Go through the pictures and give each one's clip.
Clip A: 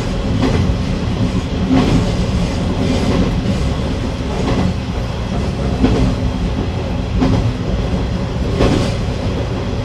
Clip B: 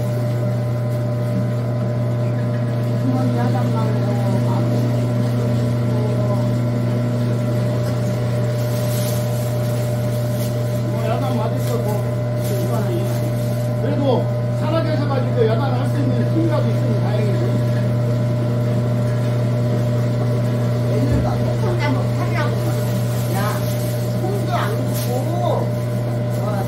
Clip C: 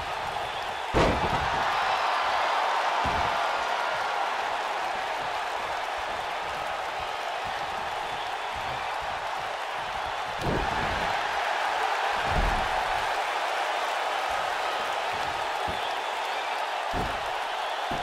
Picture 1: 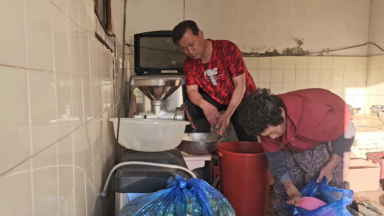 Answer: B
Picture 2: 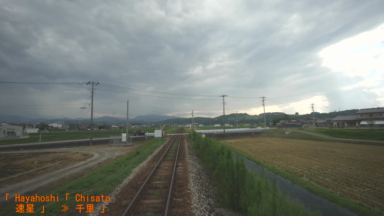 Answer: A